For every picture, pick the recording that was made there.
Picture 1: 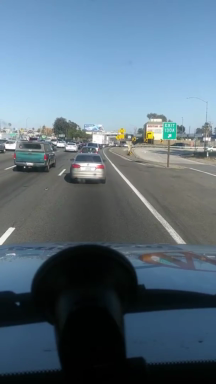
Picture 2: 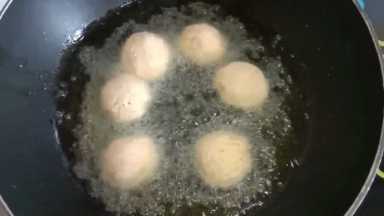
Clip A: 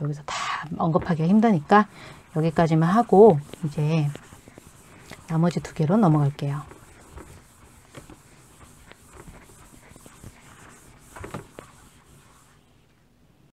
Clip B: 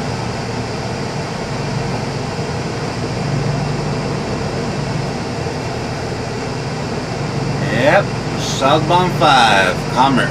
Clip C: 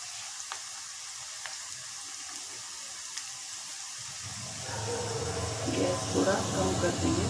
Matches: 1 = B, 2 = C